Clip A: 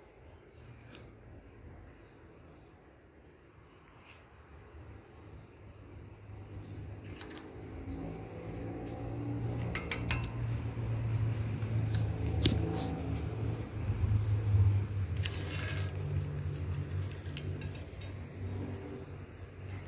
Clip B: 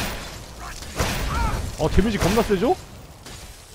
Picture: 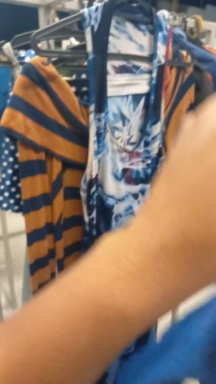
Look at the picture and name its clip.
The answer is A